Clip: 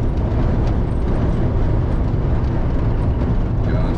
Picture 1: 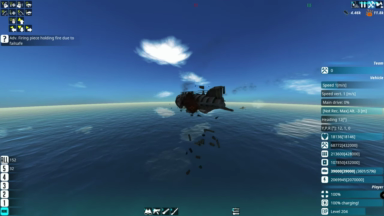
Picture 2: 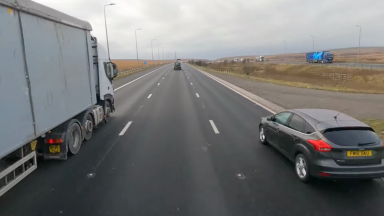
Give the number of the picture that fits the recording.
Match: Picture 2